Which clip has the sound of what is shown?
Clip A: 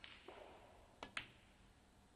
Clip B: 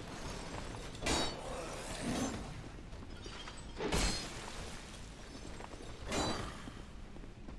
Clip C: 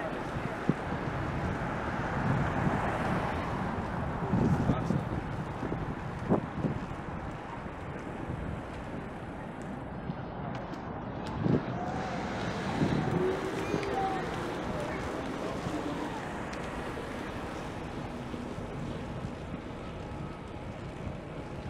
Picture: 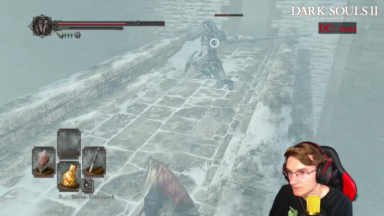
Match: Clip B